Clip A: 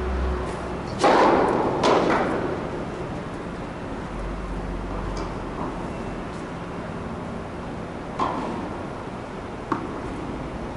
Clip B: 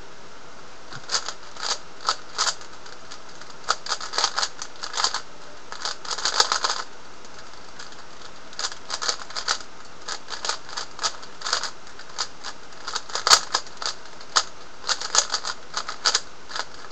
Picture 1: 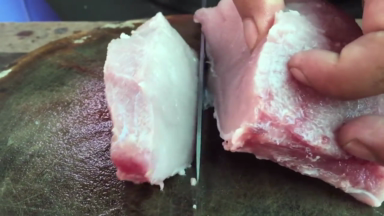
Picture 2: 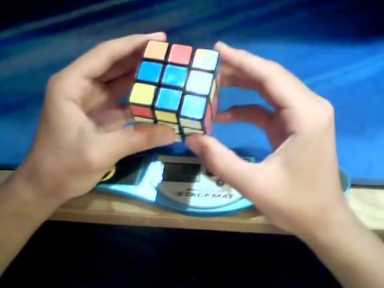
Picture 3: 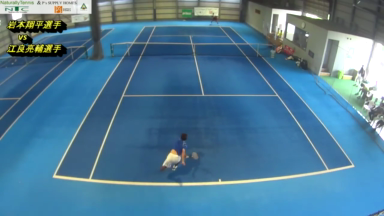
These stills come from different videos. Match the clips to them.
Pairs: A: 3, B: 2